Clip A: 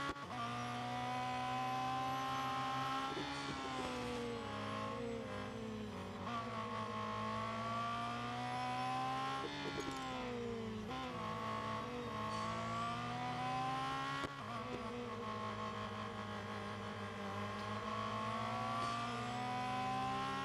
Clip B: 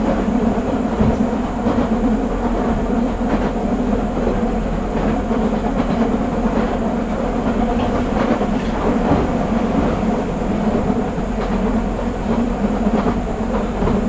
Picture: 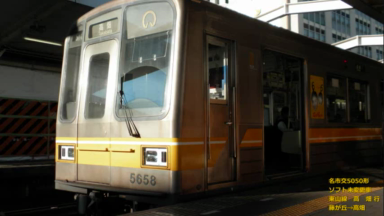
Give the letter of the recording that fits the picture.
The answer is B